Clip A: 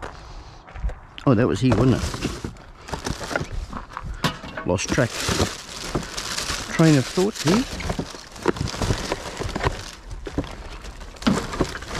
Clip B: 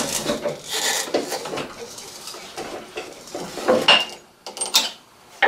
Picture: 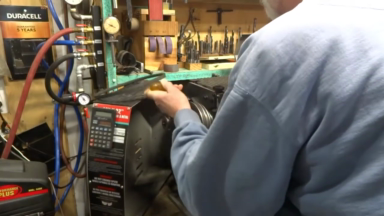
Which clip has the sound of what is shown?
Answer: B